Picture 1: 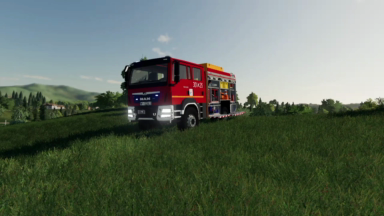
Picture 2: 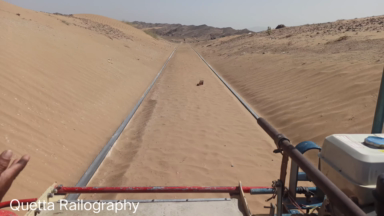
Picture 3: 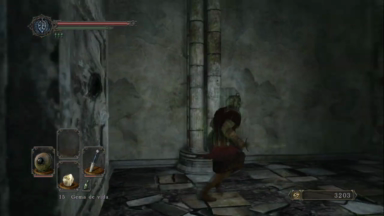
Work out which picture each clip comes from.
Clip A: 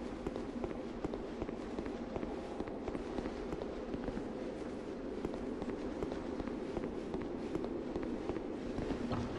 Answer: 3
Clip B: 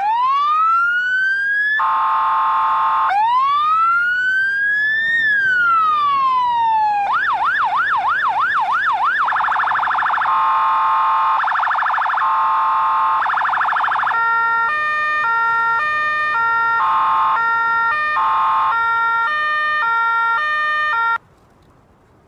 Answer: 1